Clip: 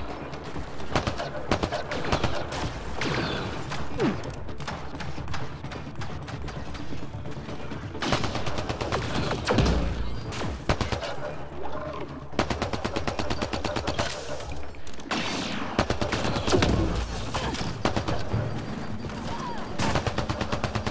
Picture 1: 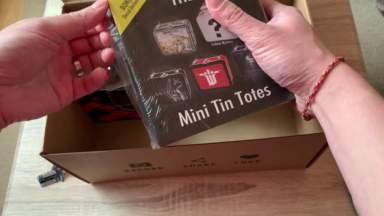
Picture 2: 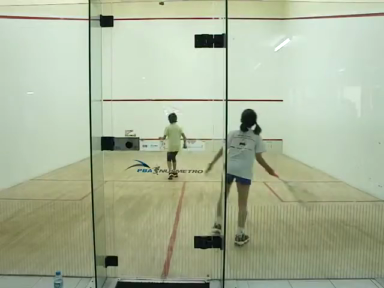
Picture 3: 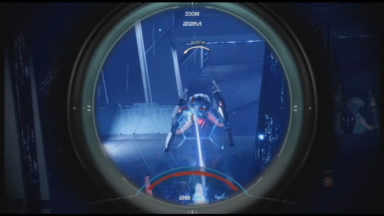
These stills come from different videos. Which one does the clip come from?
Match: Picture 3